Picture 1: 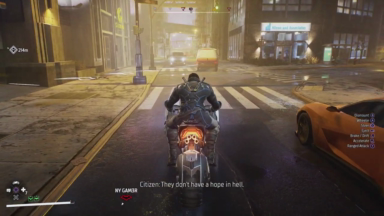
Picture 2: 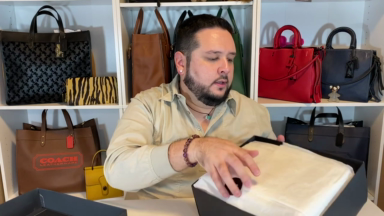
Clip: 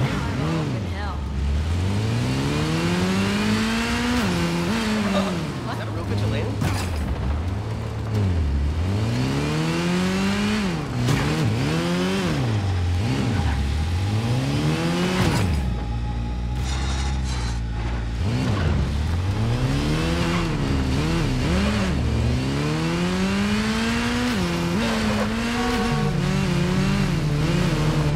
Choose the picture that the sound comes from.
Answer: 1